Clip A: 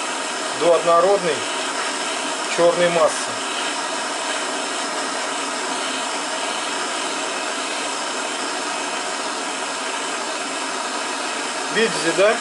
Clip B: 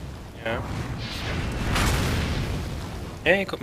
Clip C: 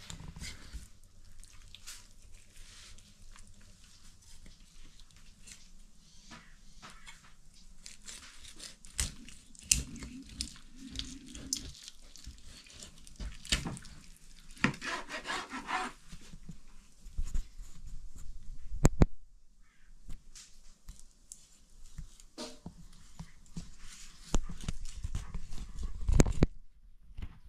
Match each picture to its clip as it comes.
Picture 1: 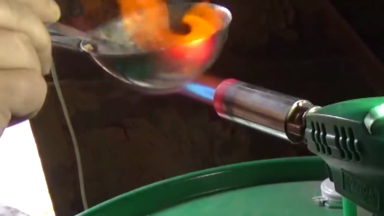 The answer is A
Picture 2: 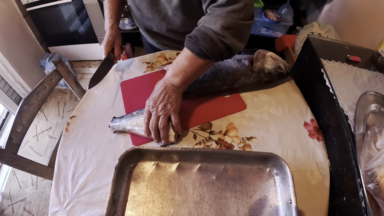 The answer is C